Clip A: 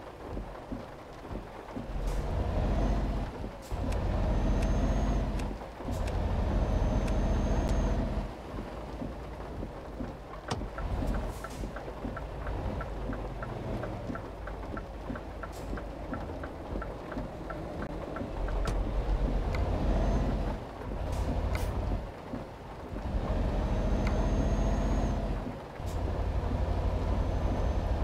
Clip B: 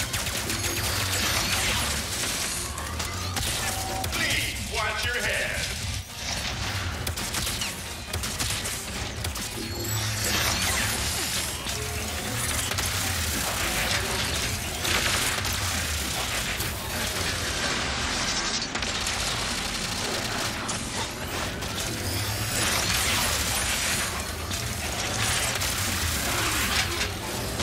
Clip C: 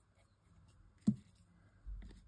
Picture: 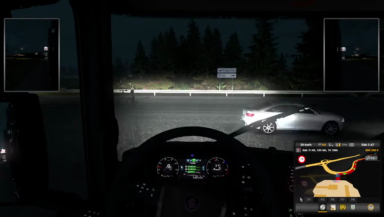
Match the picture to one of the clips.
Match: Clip A